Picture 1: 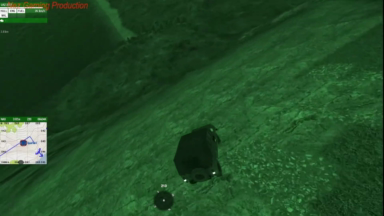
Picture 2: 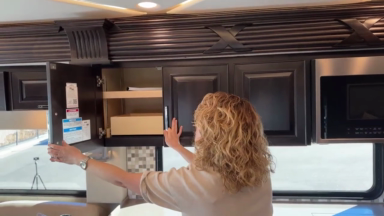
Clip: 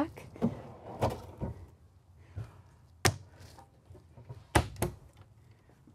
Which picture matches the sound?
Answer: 2